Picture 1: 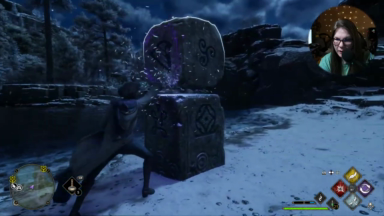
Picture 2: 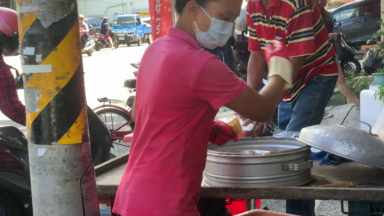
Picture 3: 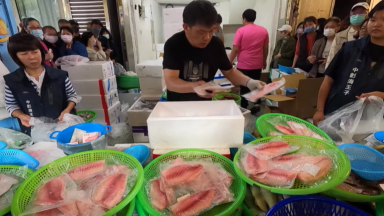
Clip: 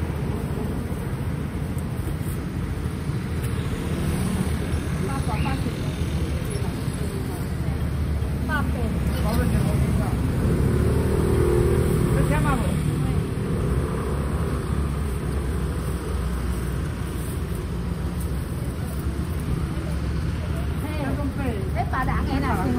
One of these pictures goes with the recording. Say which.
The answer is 2